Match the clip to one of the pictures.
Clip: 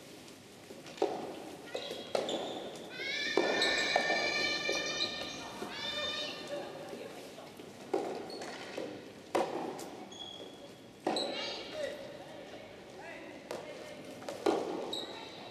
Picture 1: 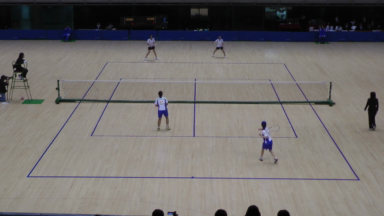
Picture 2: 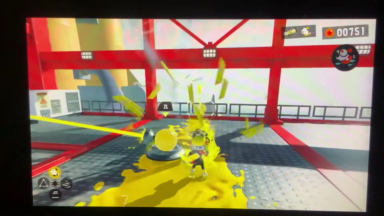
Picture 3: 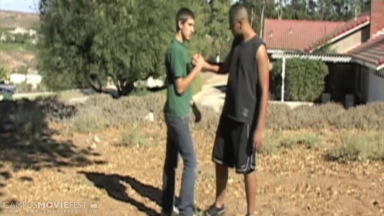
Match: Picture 1